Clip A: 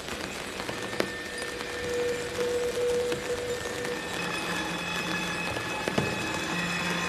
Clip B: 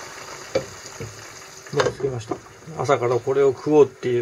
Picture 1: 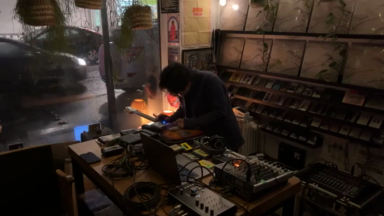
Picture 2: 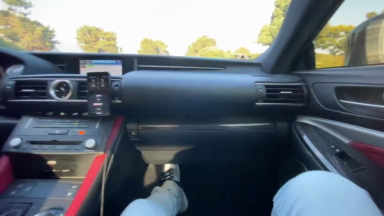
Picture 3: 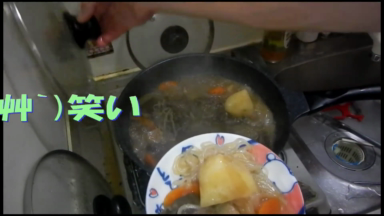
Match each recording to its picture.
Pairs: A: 1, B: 3